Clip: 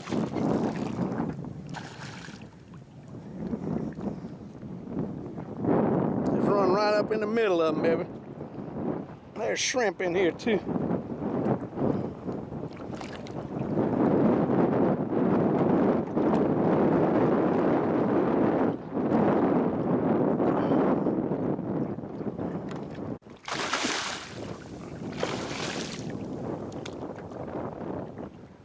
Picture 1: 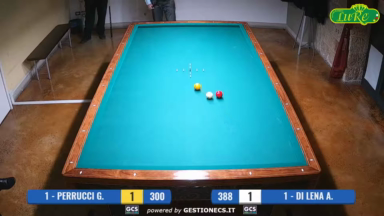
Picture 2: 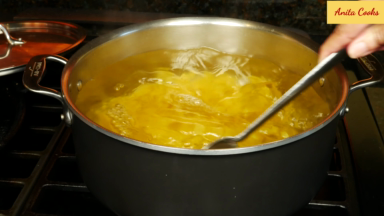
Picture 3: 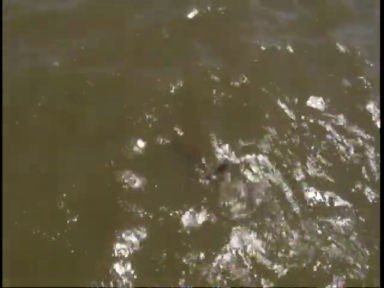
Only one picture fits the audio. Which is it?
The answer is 3